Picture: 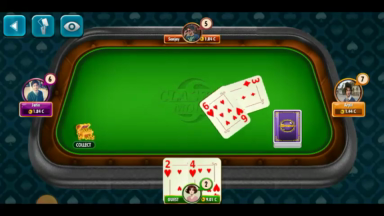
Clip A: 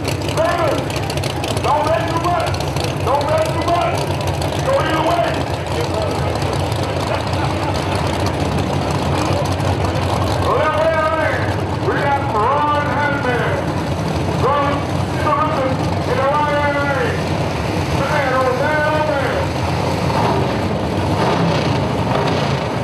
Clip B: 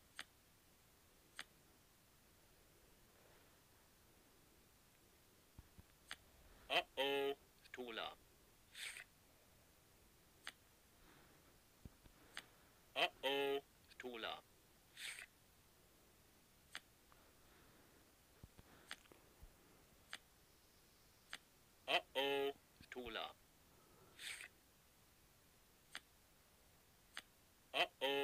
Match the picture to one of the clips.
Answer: B